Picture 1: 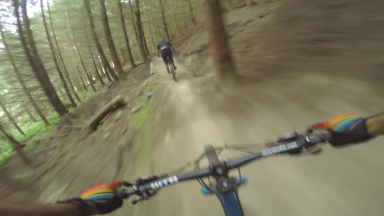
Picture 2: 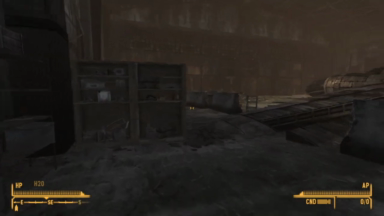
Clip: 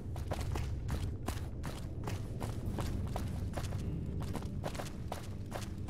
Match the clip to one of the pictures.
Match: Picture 2